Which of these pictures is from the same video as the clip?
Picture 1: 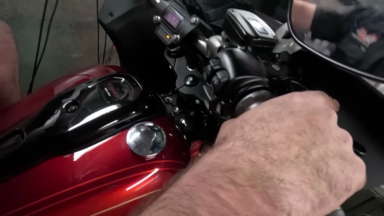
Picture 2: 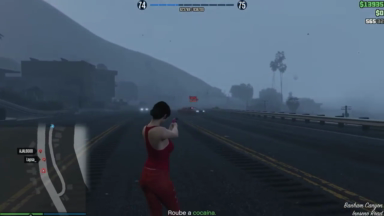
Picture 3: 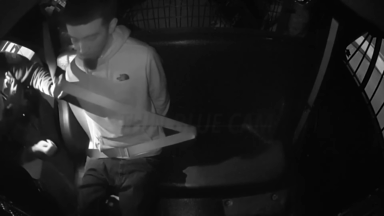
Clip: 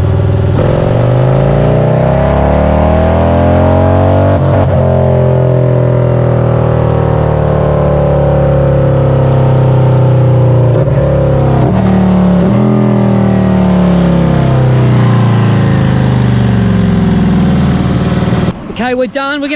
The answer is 1